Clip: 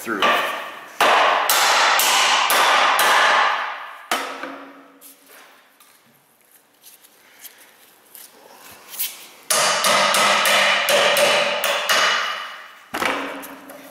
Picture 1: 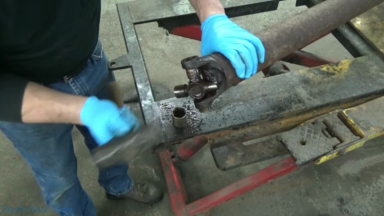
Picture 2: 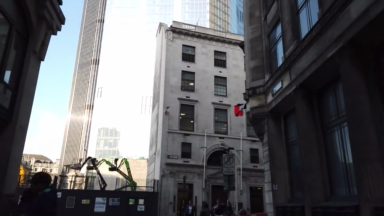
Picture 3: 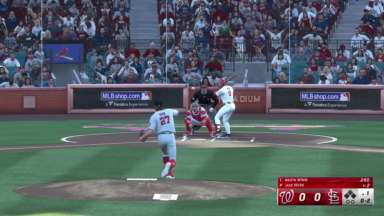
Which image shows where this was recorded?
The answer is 1